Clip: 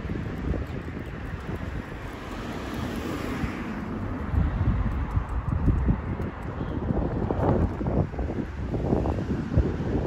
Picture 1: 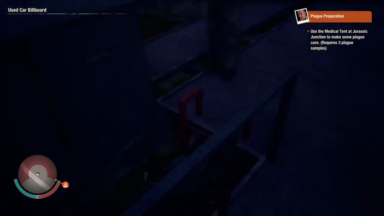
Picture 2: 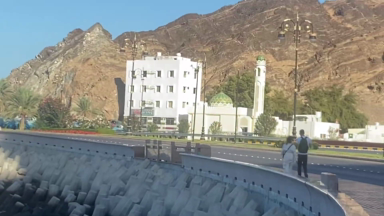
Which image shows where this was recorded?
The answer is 2